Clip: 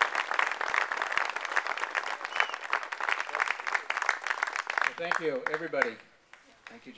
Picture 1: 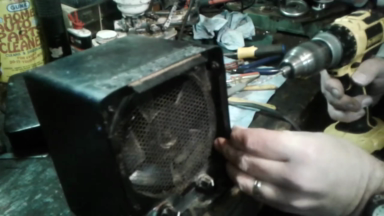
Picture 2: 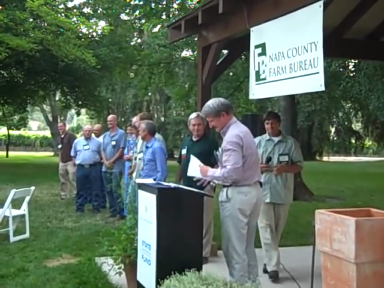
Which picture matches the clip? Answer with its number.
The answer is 2